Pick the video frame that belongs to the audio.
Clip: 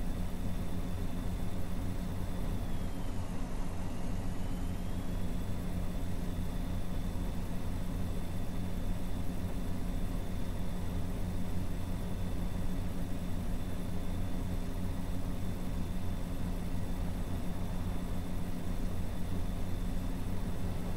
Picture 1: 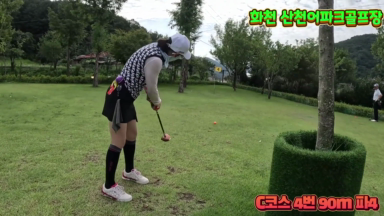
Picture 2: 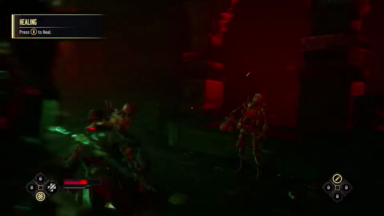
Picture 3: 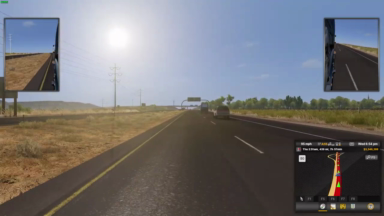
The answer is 3